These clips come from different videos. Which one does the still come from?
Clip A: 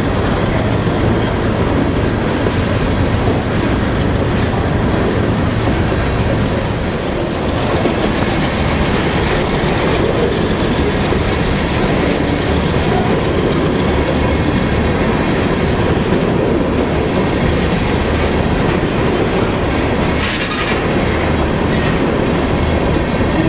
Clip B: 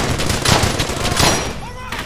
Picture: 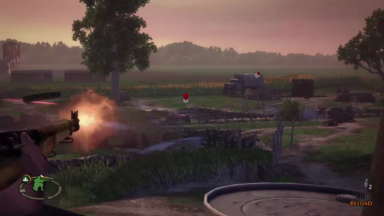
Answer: B